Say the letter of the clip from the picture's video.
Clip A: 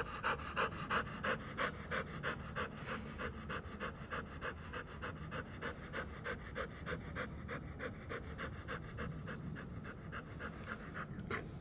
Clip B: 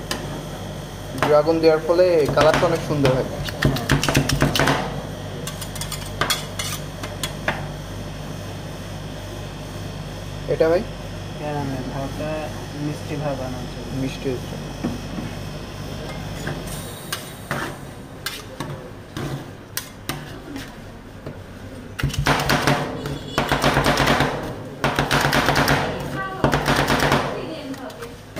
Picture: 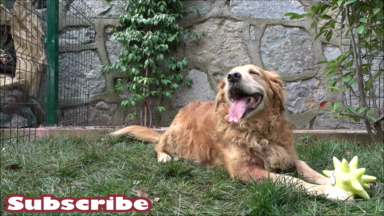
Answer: A